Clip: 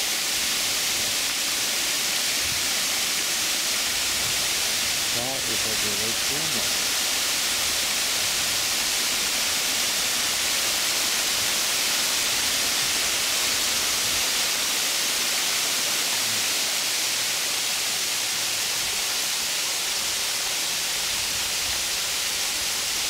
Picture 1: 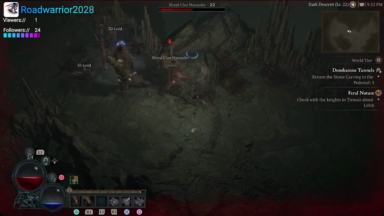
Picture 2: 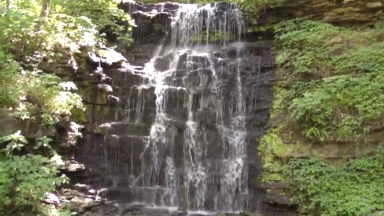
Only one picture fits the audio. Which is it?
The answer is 2